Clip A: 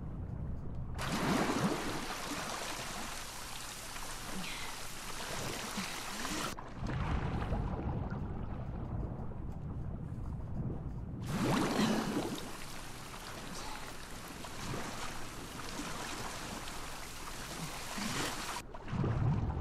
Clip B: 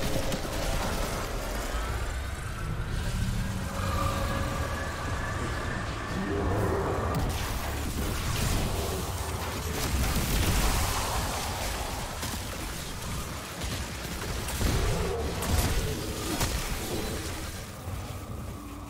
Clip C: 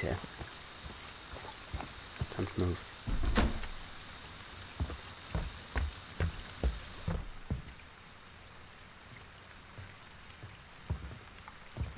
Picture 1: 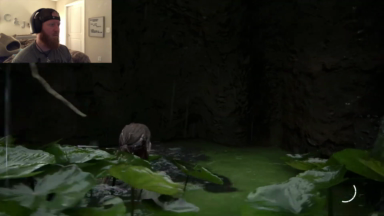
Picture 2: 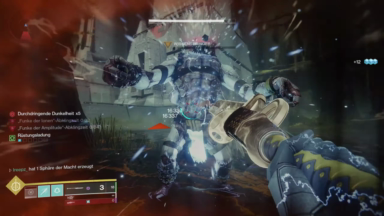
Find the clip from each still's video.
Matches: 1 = A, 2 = B